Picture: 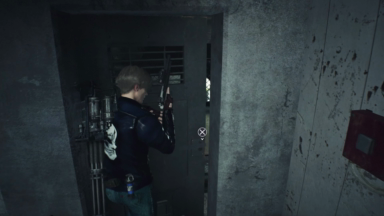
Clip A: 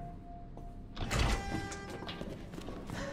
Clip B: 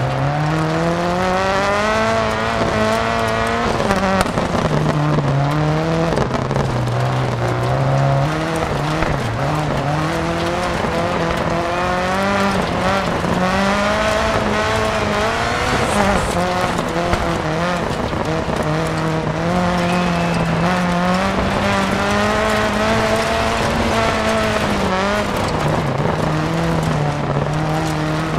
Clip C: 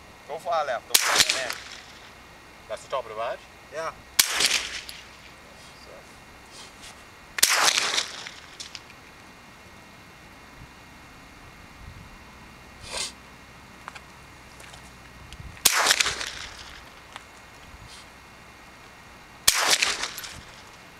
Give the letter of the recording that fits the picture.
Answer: A